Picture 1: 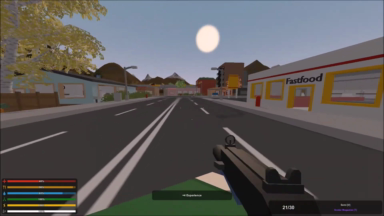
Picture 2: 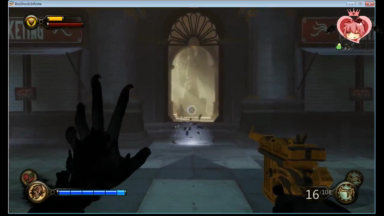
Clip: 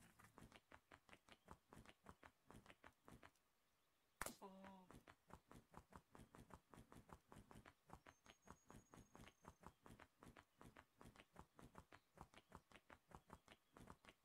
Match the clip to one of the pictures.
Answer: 1